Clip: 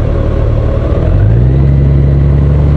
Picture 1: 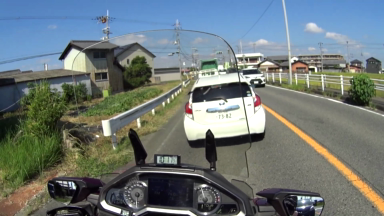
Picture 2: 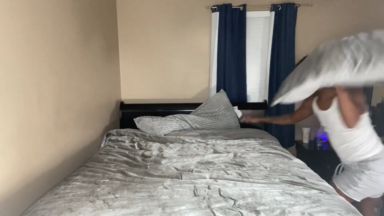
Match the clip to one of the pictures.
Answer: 1